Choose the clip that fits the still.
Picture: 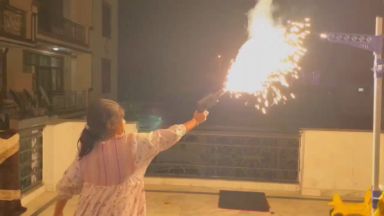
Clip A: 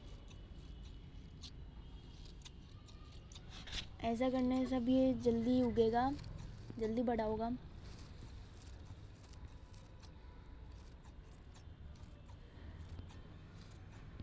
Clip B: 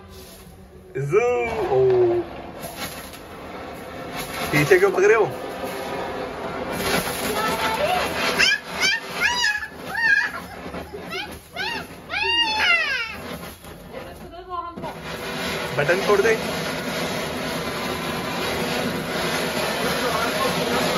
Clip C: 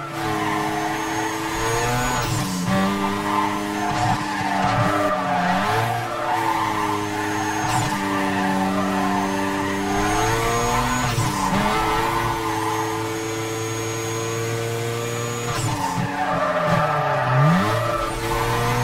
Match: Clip B